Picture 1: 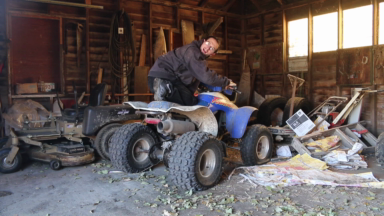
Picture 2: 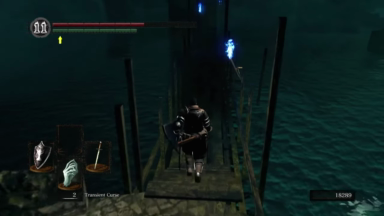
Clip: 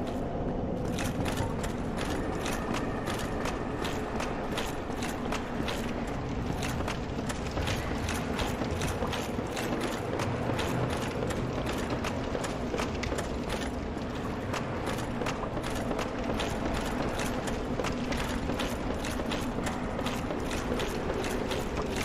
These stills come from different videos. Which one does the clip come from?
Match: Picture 2